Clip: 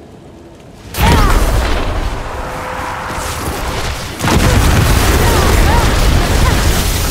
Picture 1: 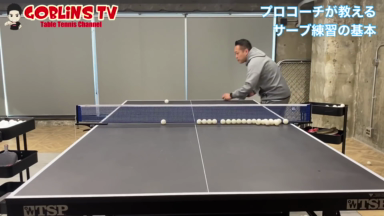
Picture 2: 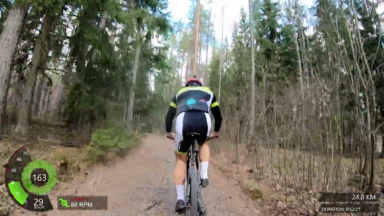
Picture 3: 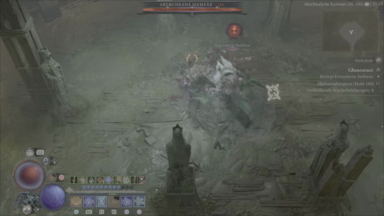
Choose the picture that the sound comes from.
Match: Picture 3